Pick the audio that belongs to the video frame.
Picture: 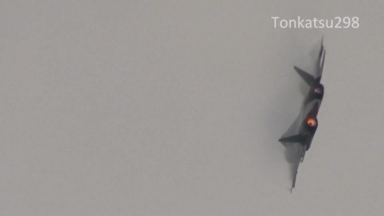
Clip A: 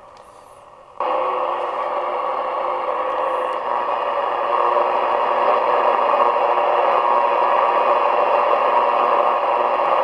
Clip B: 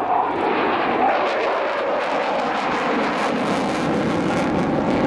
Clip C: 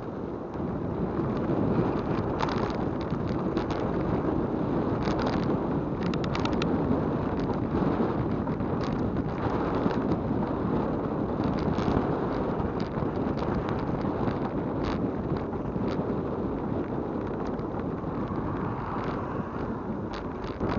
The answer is B